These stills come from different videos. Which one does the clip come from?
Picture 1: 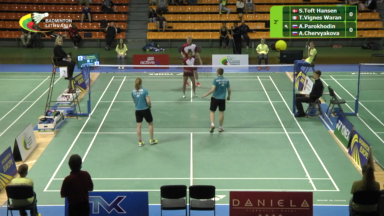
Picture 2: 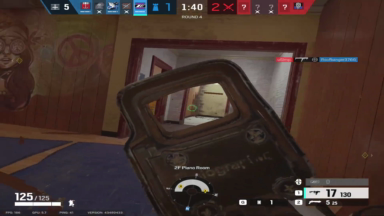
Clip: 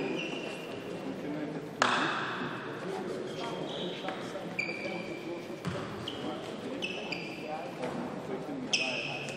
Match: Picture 1